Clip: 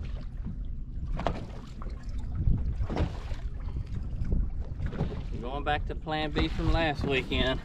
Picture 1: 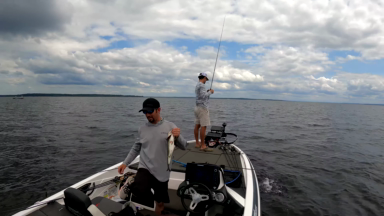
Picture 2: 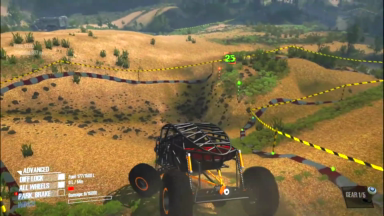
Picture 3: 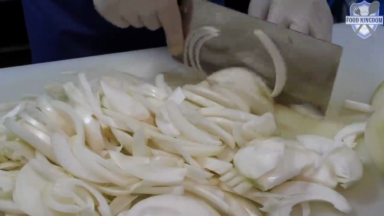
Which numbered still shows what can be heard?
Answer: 1